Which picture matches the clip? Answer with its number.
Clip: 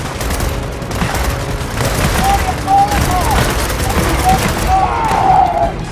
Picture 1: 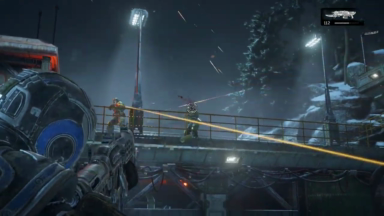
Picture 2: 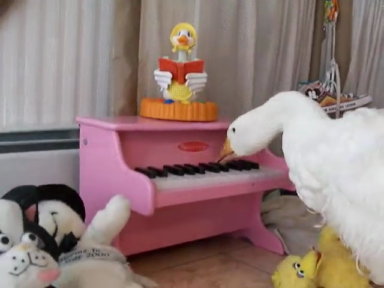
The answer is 1